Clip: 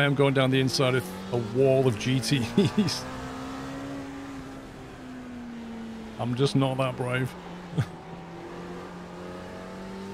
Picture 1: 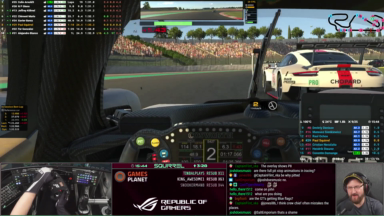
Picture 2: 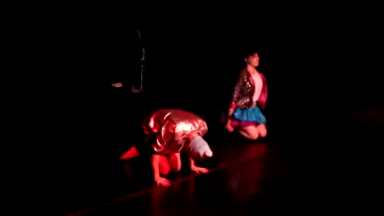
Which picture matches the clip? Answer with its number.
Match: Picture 1